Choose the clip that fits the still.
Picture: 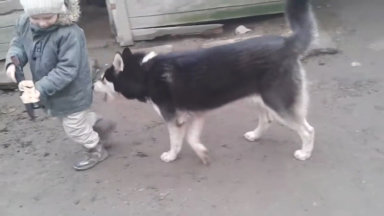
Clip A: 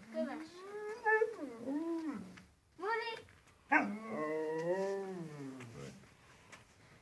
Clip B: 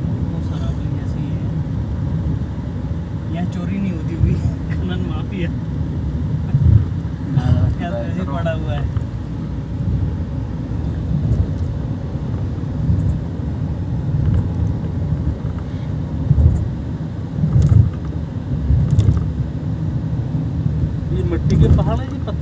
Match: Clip A